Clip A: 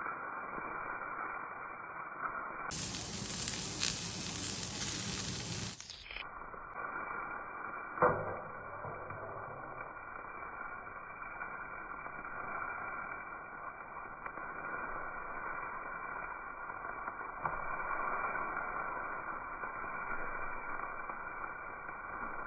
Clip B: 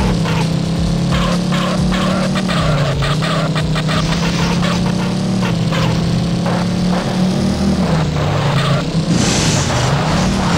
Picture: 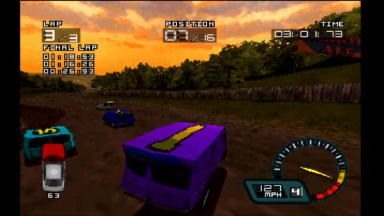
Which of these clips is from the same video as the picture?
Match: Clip B